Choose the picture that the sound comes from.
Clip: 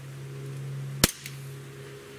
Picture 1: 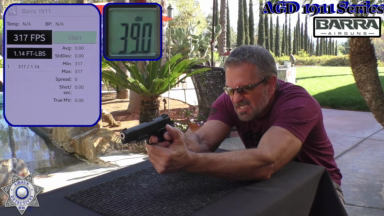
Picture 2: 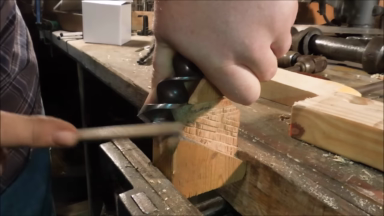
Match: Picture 1